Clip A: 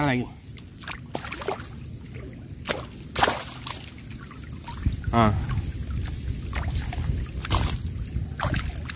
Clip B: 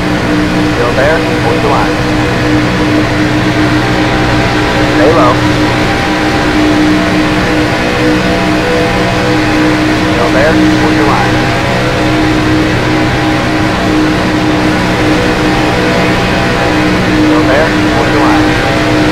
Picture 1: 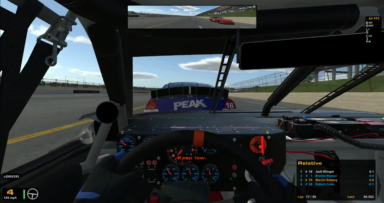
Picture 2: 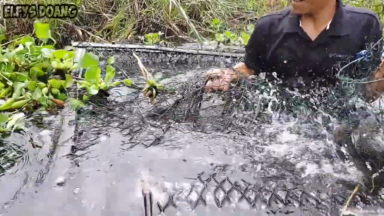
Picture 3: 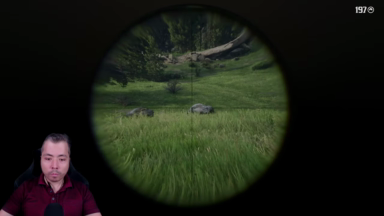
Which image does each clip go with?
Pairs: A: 2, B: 1